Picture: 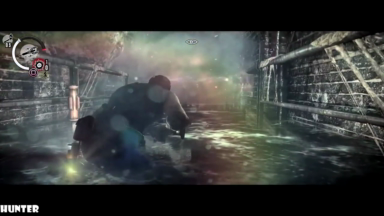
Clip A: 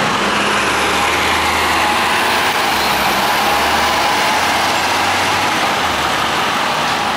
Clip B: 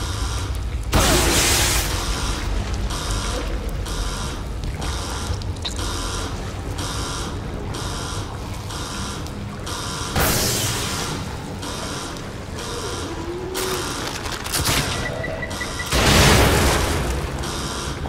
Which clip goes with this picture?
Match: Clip B